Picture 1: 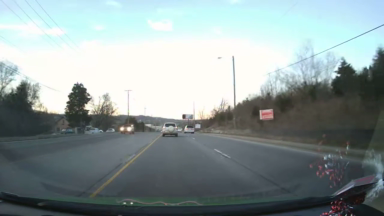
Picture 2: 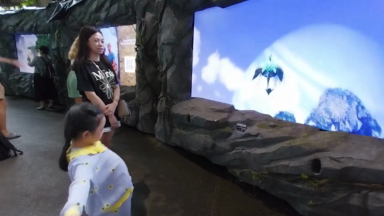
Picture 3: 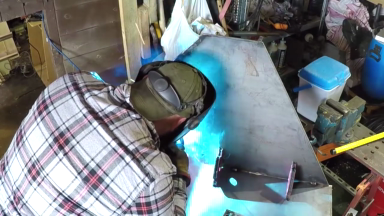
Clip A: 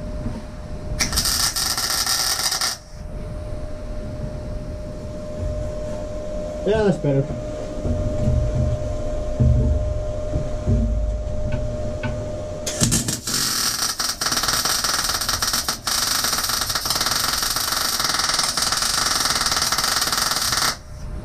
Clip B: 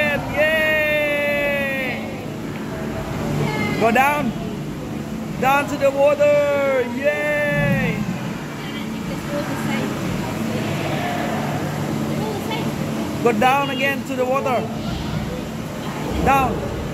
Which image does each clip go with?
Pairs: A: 3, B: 2